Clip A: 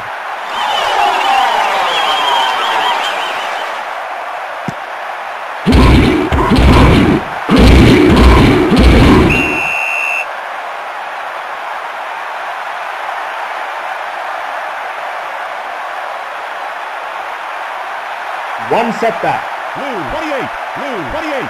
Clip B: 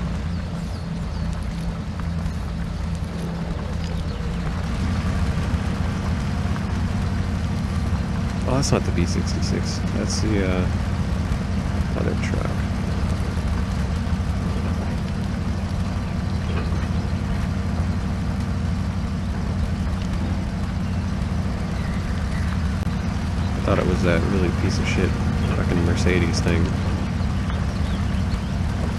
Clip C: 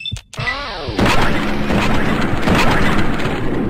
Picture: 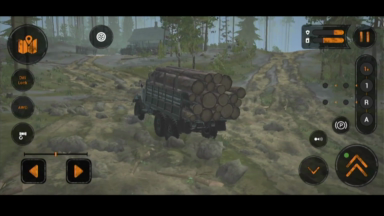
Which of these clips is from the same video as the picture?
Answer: B